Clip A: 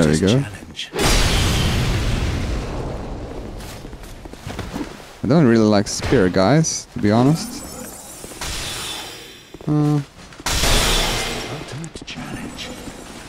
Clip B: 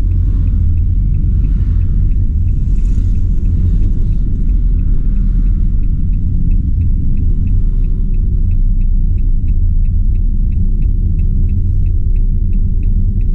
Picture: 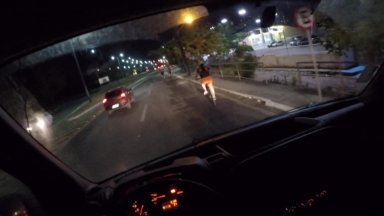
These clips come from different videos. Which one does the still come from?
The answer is B